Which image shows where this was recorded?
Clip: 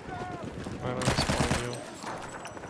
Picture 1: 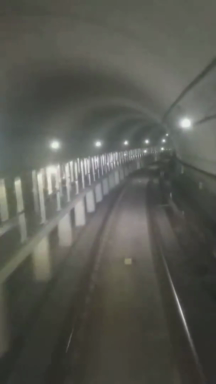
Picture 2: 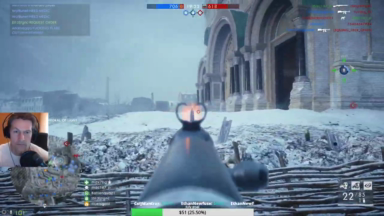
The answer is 2